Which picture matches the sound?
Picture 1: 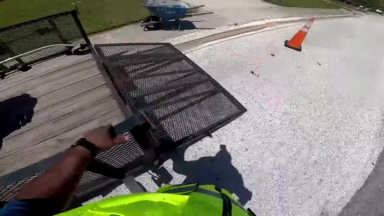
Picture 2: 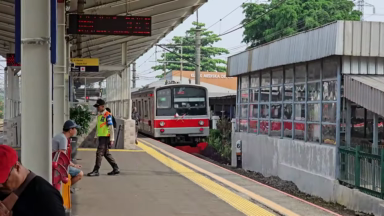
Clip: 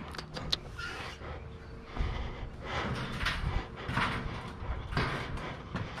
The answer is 1